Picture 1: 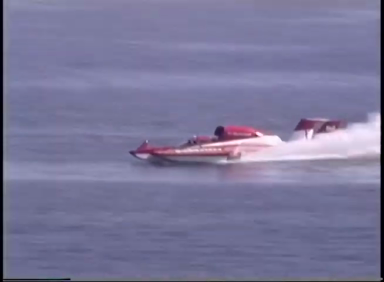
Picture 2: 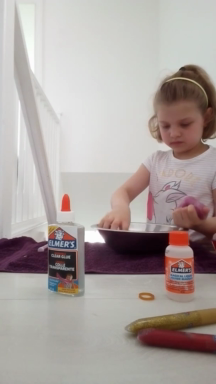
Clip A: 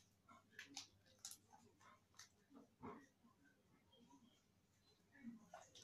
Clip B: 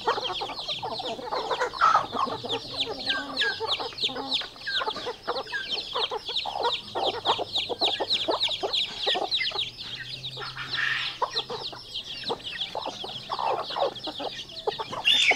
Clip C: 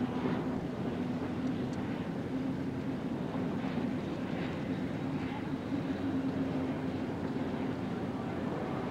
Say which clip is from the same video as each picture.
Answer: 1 C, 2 A